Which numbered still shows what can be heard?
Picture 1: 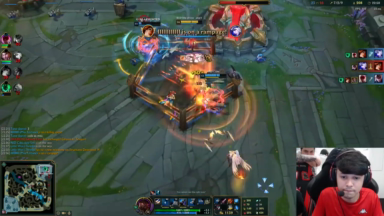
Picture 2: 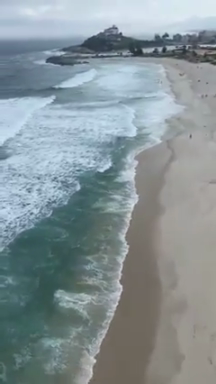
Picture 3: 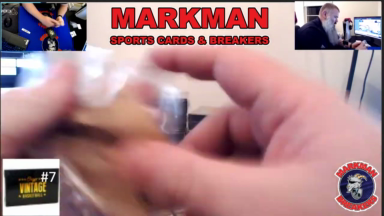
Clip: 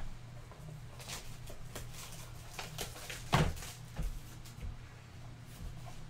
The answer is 3